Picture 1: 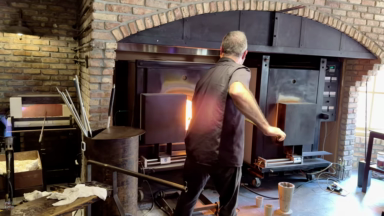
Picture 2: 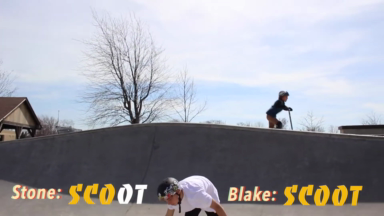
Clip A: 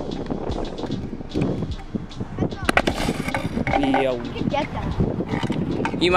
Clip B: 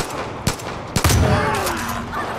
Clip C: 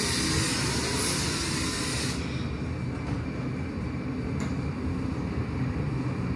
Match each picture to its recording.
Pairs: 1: C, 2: A